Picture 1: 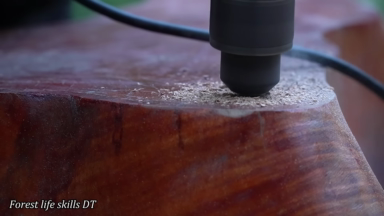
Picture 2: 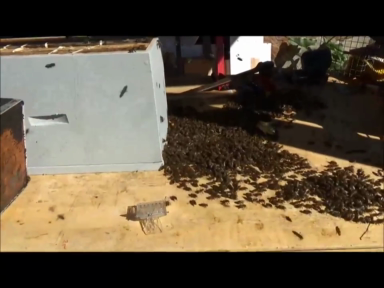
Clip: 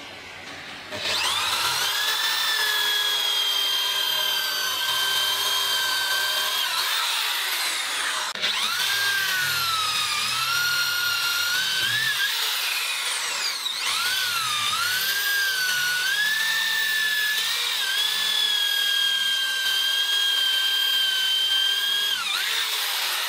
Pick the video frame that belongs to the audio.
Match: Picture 1